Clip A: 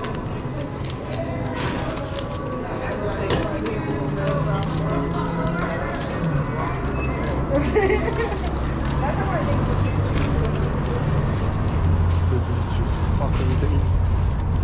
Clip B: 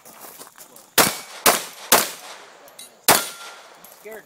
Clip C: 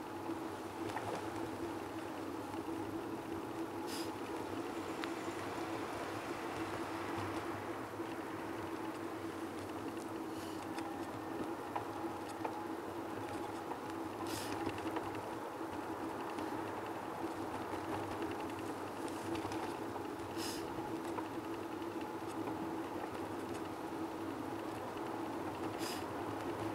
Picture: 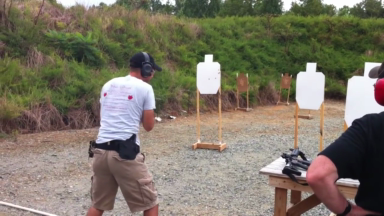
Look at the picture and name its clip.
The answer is B